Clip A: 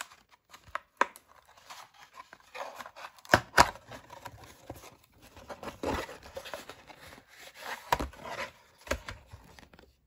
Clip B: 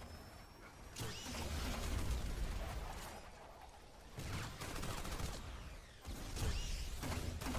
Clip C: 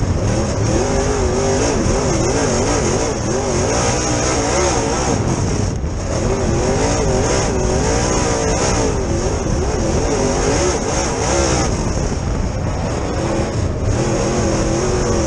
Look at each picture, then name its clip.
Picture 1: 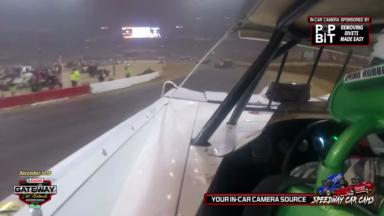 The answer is C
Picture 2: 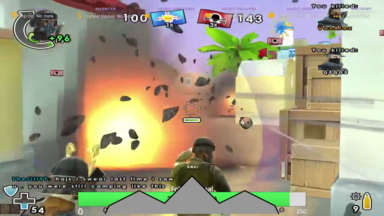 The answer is B